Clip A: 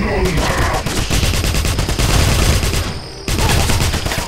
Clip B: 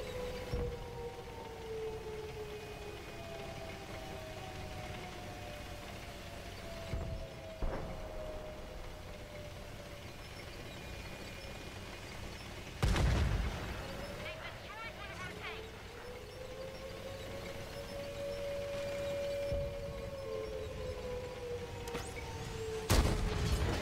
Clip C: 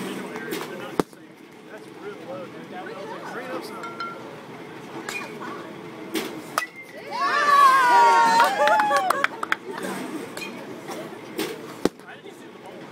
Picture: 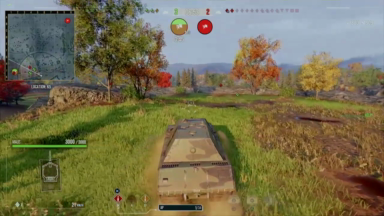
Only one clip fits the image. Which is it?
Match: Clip B